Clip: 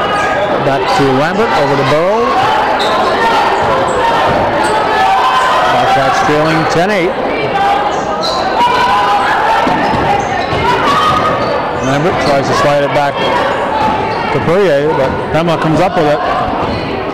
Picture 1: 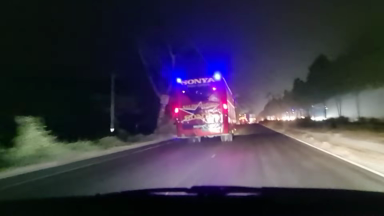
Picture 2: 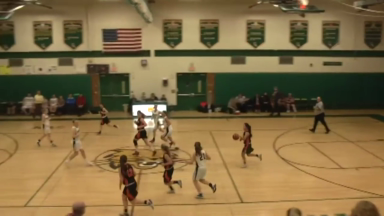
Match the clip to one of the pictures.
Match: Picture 2